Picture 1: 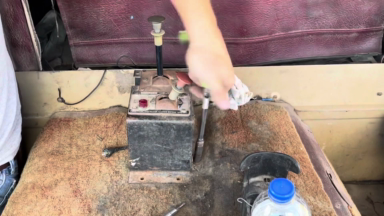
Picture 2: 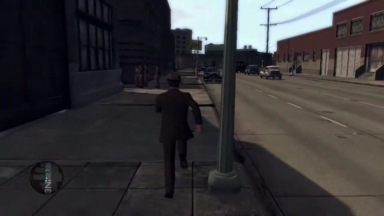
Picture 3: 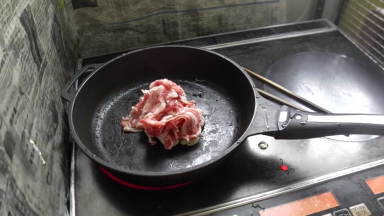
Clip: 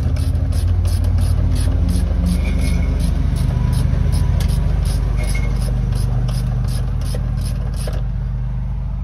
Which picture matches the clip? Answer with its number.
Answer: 1